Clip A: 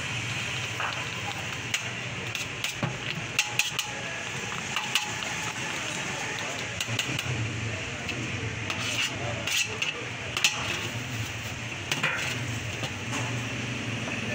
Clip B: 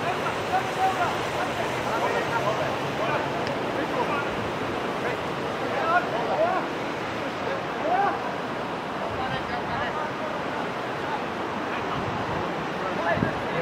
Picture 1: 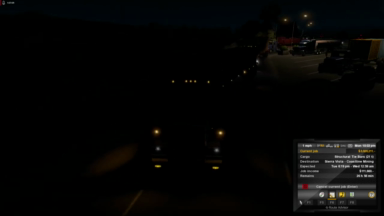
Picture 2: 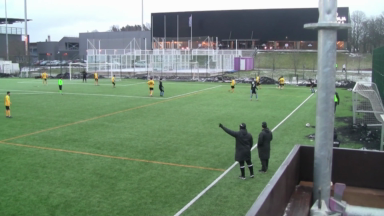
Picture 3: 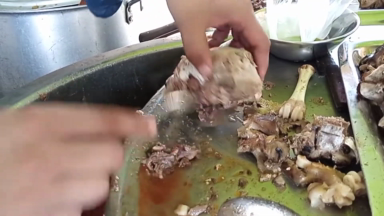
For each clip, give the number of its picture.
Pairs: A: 3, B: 2